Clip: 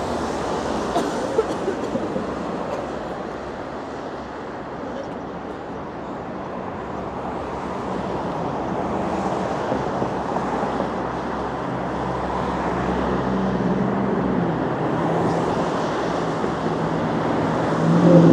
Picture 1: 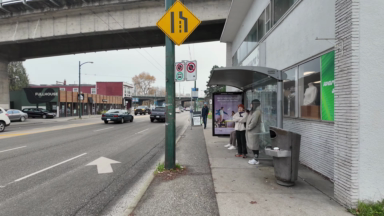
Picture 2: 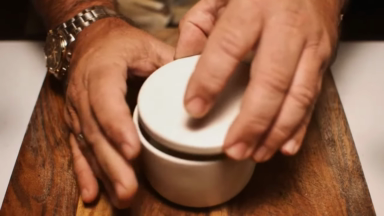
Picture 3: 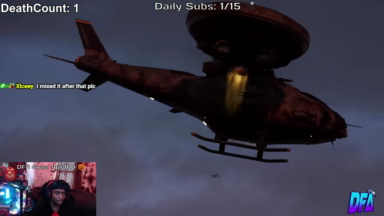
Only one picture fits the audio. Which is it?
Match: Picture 1